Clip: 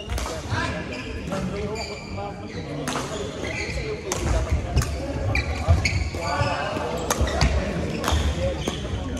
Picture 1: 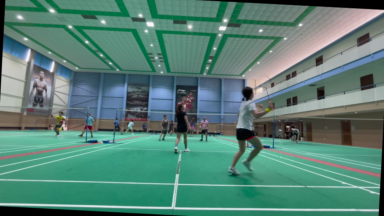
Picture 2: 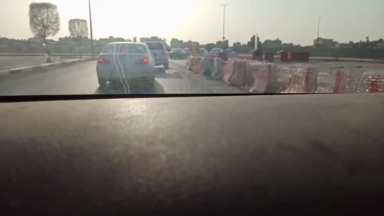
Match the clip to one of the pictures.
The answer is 1